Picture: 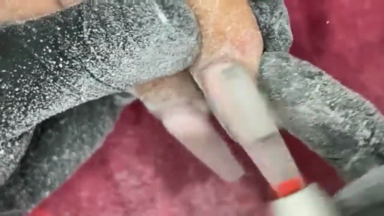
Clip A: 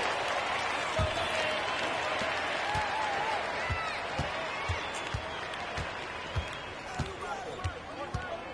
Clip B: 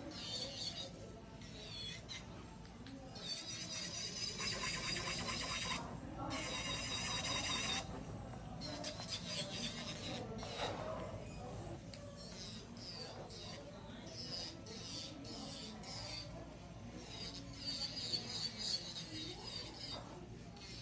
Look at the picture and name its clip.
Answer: B